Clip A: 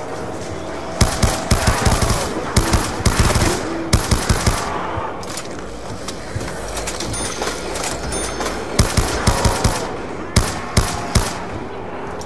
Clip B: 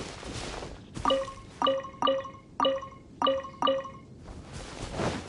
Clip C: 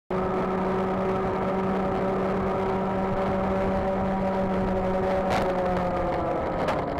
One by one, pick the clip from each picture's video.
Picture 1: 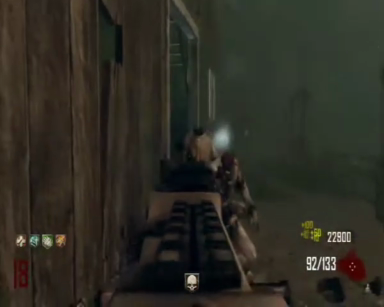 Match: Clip A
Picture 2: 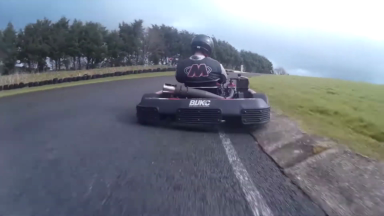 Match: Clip C